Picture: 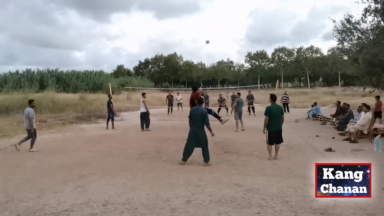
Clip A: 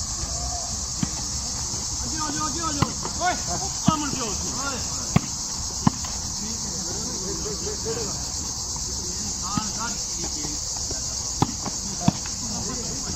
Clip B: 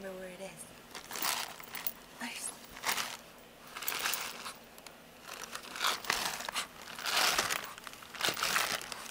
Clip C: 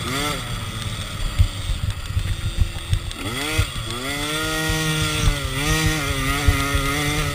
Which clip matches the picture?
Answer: A